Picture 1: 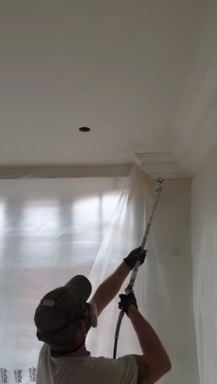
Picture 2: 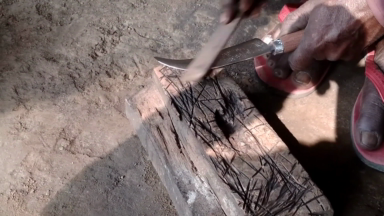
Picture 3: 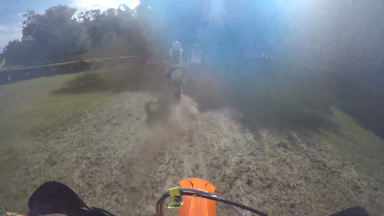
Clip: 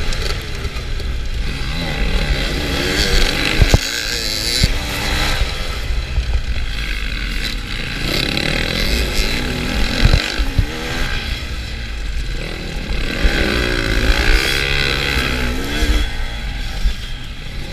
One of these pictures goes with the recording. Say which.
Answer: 3